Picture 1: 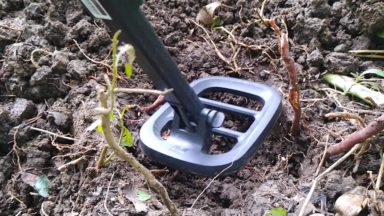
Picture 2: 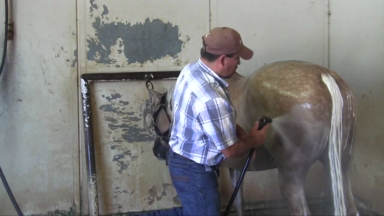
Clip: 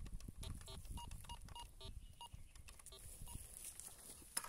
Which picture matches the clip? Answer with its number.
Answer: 1